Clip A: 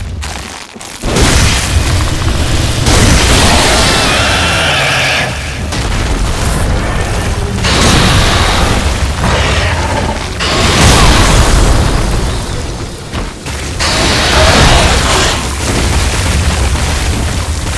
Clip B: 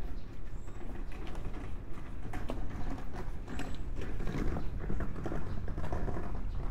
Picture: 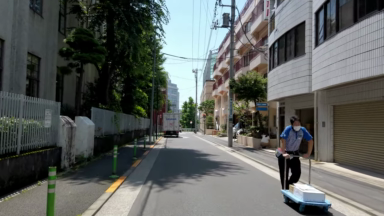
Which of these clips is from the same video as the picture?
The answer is B